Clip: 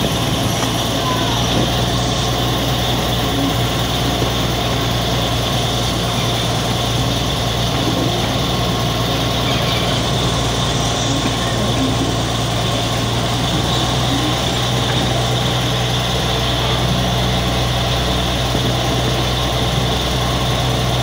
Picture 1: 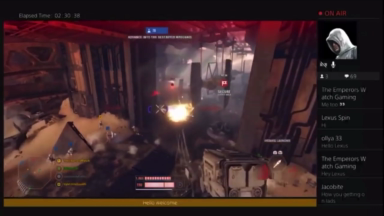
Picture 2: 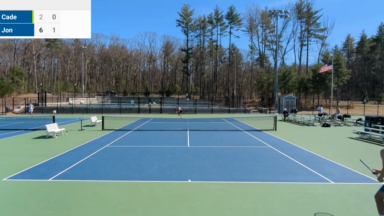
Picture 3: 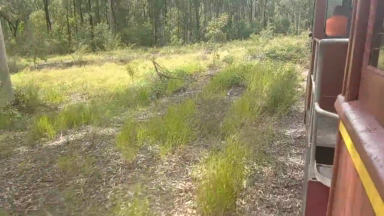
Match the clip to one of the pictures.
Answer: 3